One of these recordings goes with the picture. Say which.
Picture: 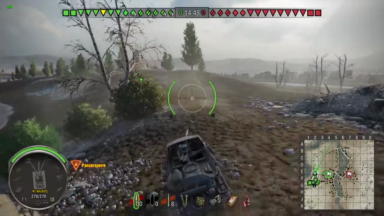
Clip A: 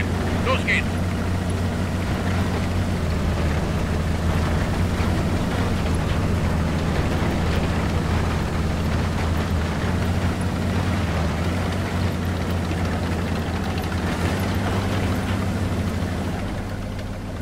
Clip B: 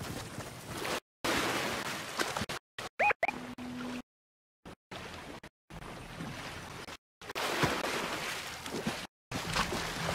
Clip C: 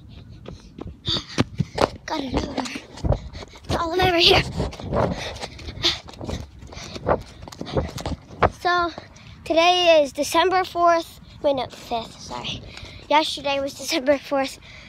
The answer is A